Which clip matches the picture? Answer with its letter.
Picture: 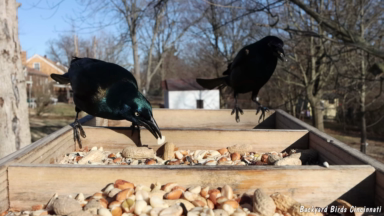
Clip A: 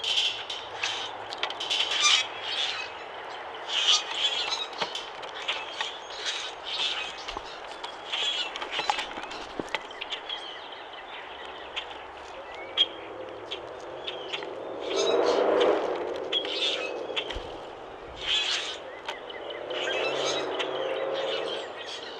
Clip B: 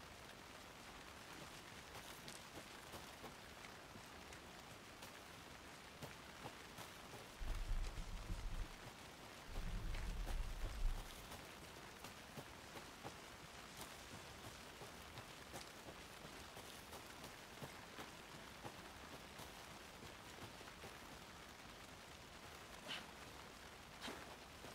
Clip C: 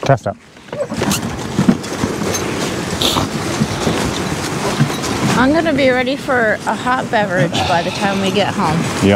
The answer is A